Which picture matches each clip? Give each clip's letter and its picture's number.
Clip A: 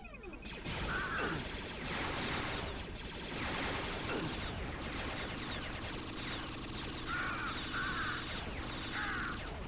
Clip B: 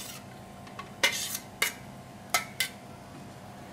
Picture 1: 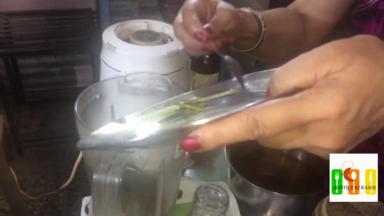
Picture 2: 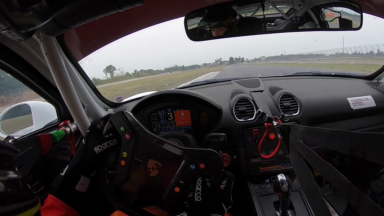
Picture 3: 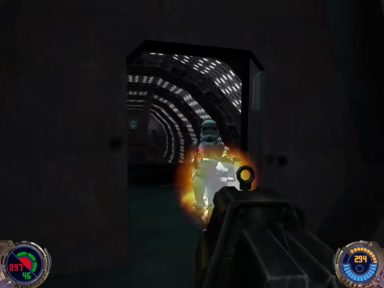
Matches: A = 3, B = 1